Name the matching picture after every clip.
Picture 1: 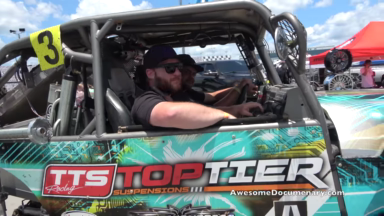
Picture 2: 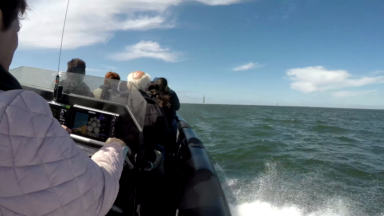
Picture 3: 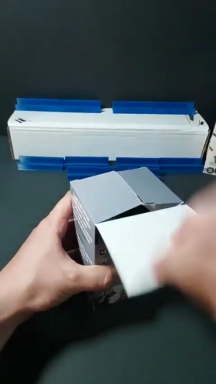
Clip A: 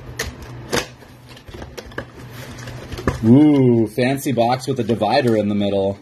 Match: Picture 3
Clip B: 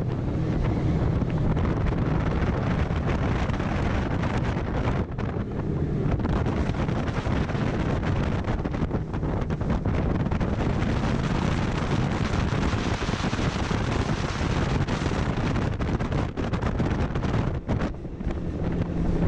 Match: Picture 2